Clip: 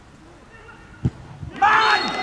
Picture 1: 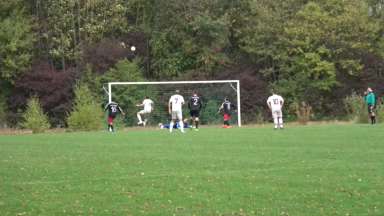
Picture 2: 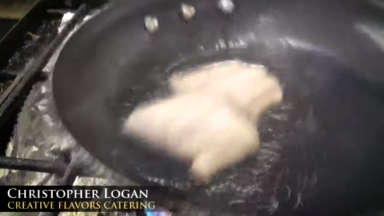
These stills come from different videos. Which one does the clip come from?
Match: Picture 1